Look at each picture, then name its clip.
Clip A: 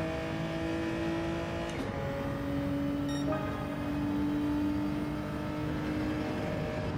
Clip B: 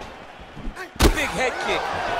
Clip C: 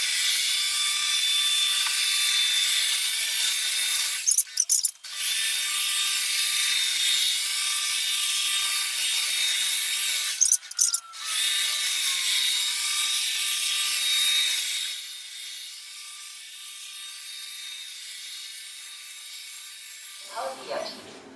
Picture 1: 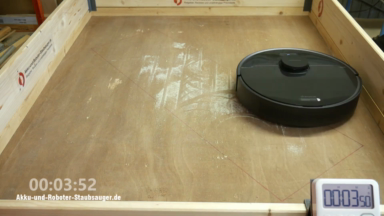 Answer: C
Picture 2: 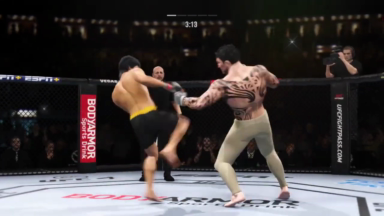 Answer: B